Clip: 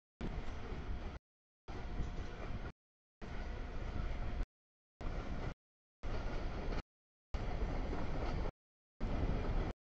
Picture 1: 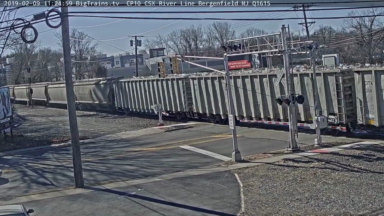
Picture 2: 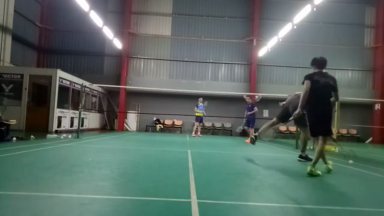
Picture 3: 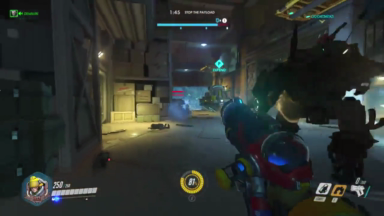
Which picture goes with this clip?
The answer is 1